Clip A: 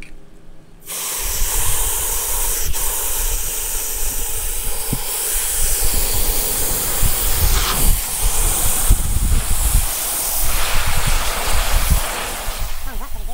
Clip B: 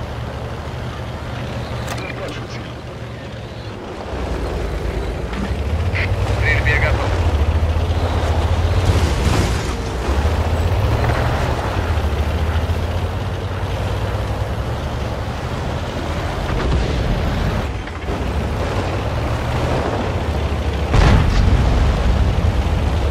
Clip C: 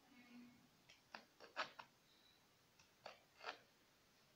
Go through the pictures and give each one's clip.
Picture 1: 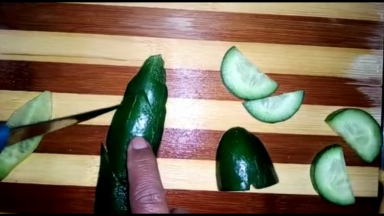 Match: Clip C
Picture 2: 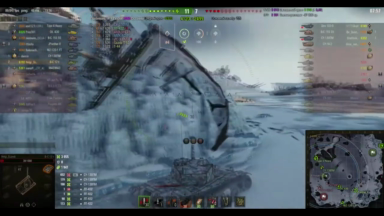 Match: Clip B